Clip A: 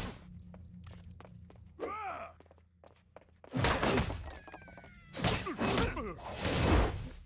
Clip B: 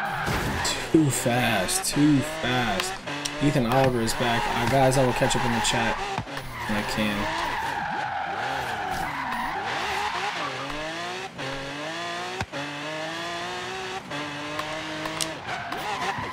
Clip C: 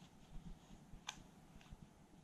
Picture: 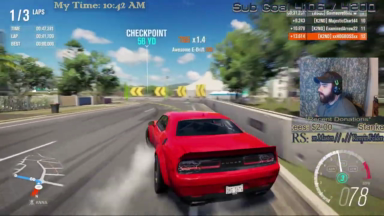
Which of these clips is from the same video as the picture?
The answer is B